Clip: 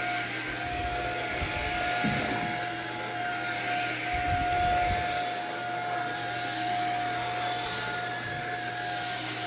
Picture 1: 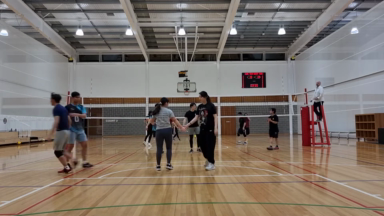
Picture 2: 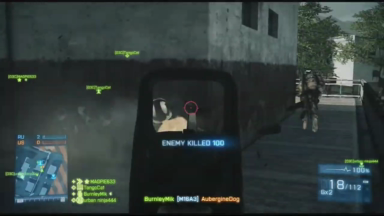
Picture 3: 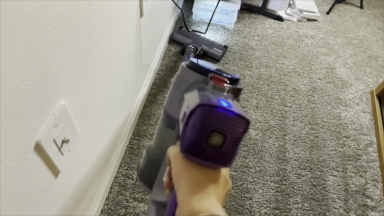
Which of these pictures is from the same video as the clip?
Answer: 3